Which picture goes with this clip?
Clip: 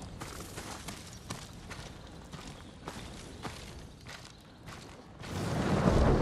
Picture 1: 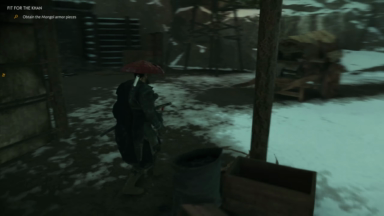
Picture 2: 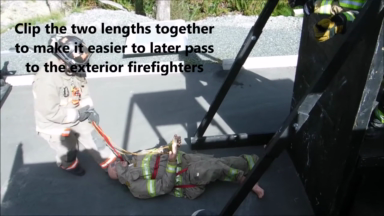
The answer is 1